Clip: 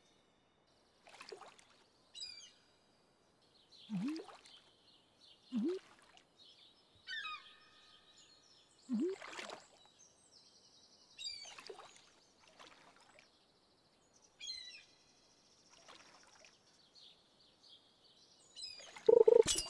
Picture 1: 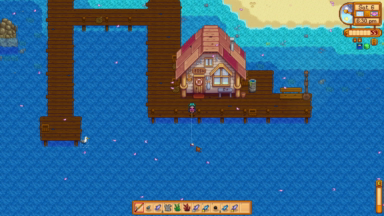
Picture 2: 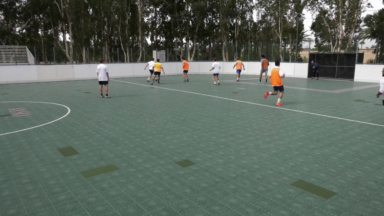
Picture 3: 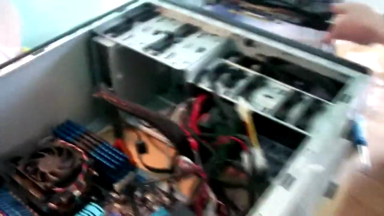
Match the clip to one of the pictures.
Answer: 1